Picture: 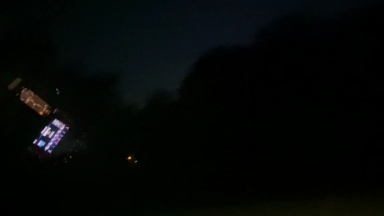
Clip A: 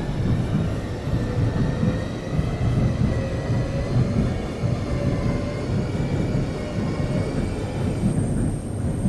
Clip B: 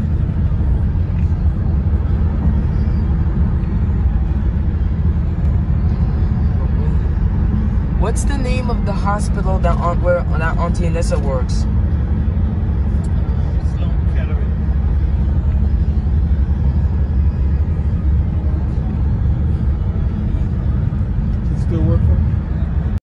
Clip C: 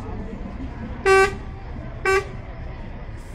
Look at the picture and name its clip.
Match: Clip B